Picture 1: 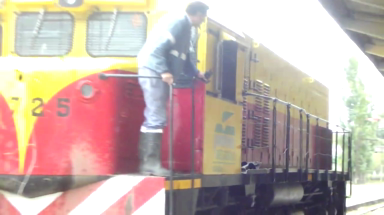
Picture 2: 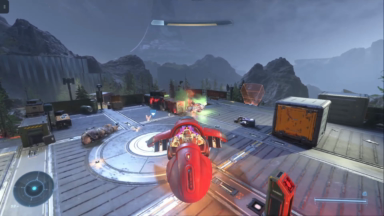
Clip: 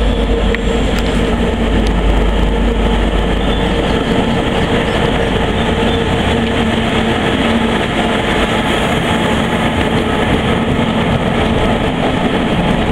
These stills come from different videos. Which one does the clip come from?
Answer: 1